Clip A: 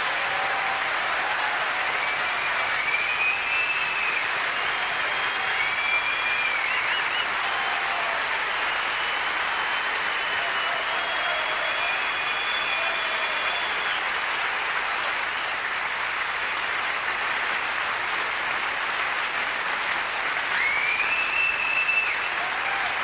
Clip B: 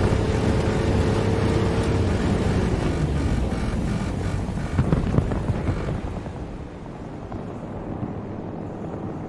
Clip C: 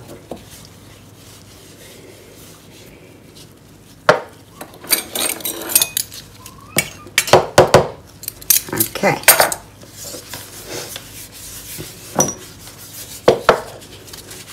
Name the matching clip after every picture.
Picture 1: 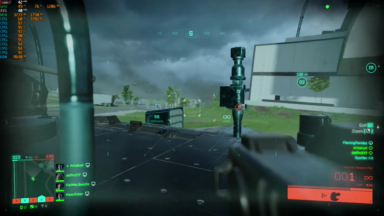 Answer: B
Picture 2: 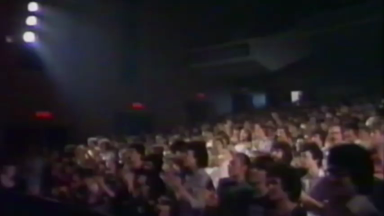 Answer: A